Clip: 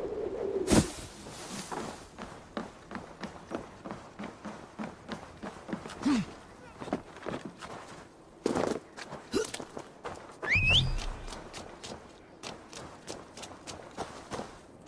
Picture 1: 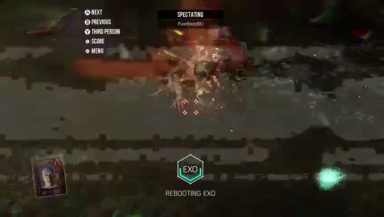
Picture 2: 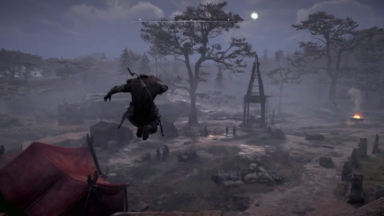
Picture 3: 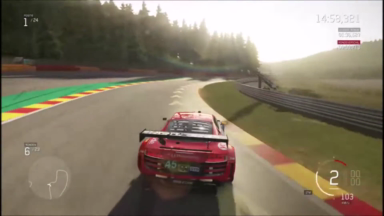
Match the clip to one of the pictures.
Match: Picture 2